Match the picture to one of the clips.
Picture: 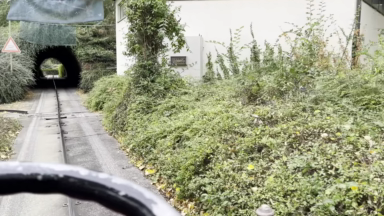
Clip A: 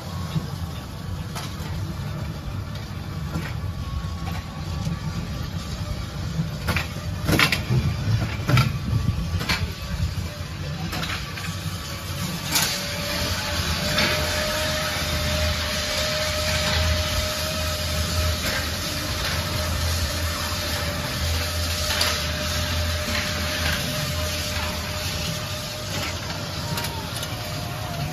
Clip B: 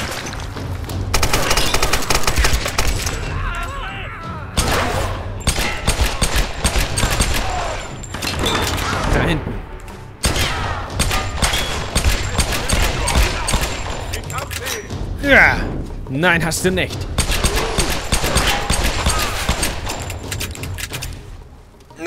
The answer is A